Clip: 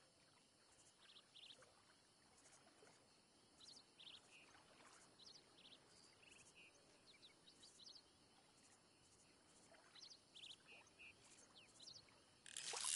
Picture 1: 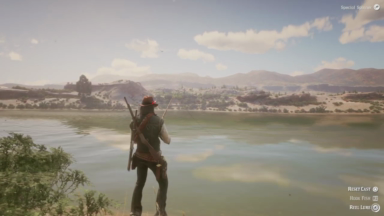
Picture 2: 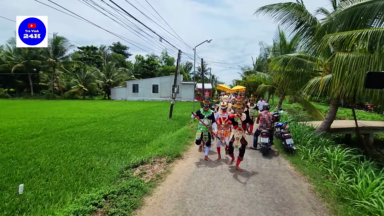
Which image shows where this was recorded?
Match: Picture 1